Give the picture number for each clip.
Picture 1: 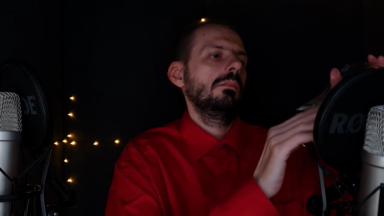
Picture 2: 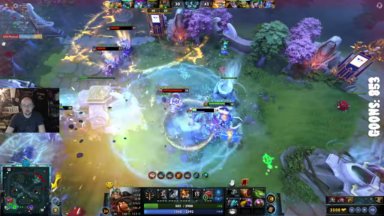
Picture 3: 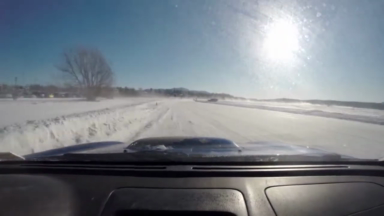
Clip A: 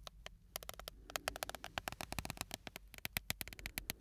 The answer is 1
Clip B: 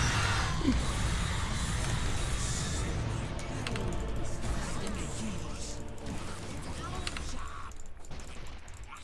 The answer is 2